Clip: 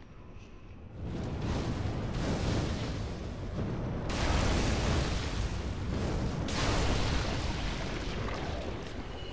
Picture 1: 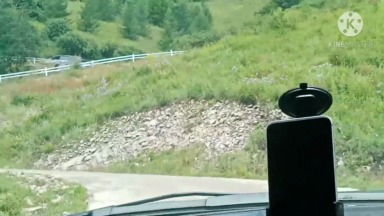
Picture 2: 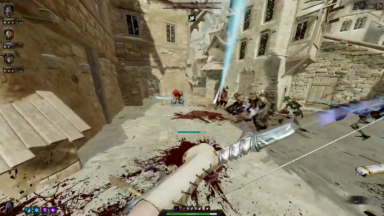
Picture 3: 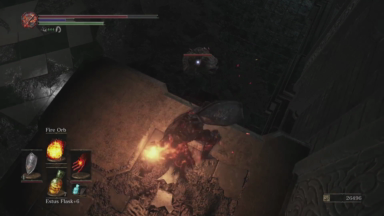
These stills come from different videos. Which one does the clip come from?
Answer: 3